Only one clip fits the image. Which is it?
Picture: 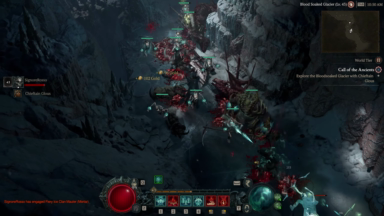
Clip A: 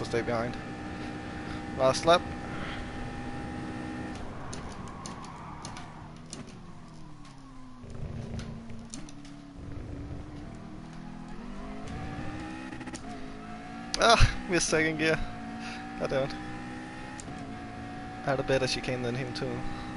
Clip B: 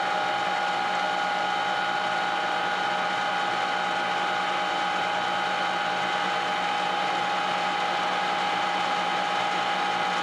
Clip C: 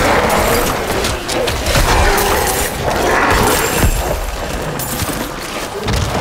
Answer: C